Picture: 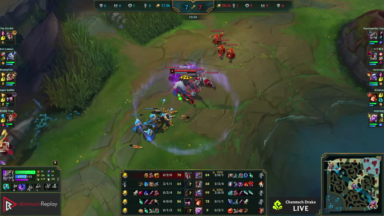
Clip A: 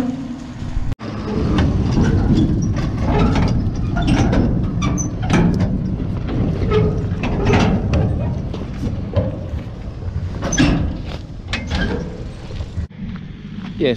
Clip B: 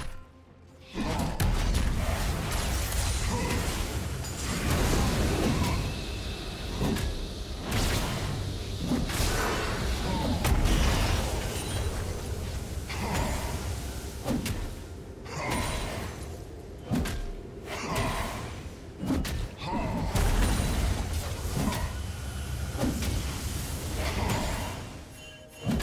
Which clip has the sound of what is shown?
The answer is B